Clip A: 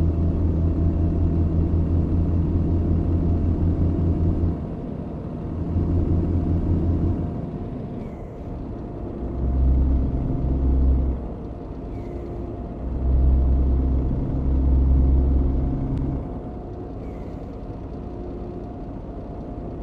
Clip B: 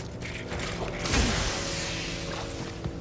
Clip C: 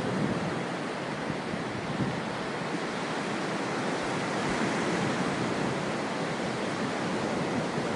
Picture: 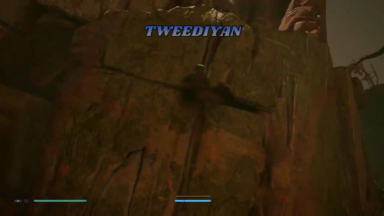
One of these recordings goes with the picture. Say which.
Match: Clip B